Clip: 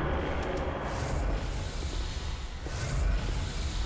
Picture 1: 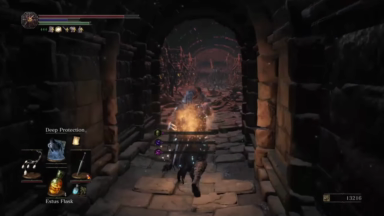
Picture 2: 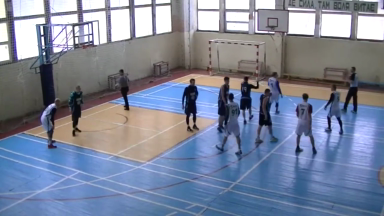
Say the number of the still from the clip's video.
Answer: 1